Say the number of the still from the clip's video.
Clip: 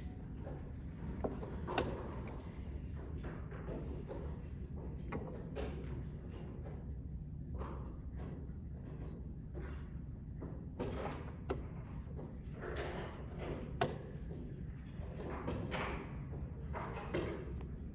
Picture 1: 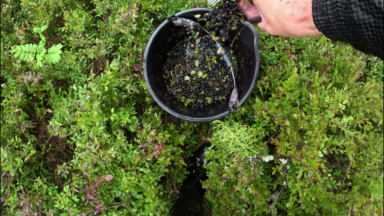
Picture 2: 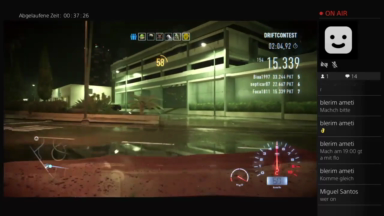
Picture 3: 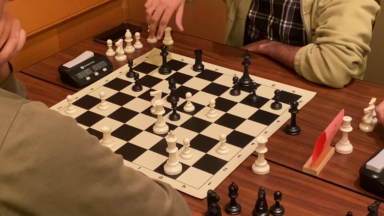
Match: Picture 3